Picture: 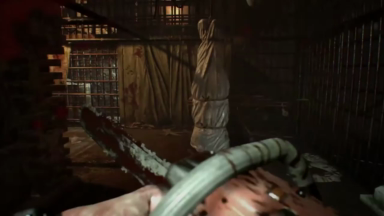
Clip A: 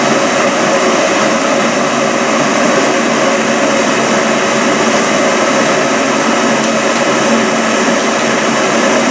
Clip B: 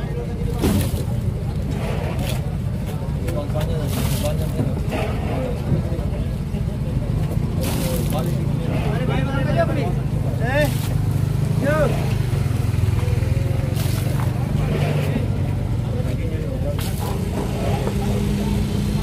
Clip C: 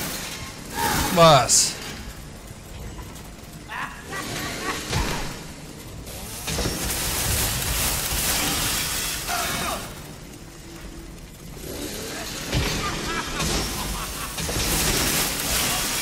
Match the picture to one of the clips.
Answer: C